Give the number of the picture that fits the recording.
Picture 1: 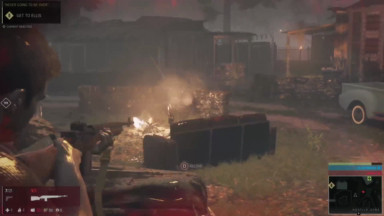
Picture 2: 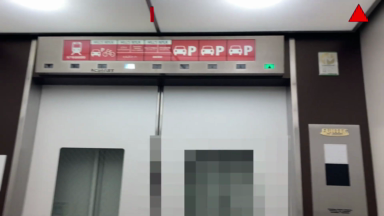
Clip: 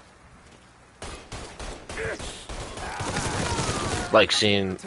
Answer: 1